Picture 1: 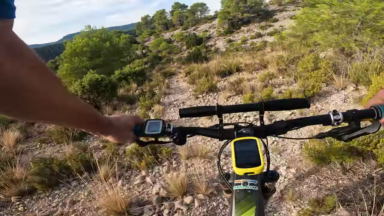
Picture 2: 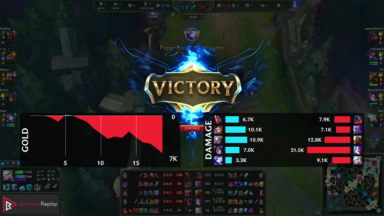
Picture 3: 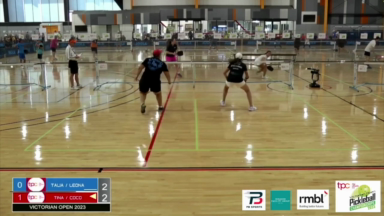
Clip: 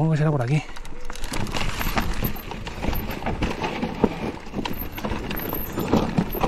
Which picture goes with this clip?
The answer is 1